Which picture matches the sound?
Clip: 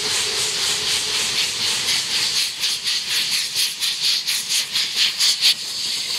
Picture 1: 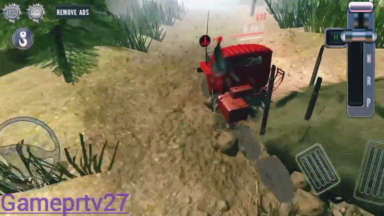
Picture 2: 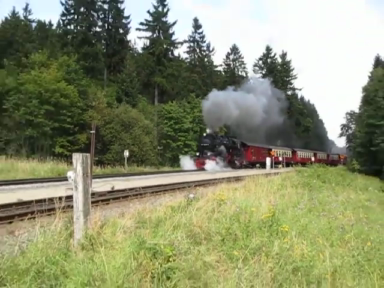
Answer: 2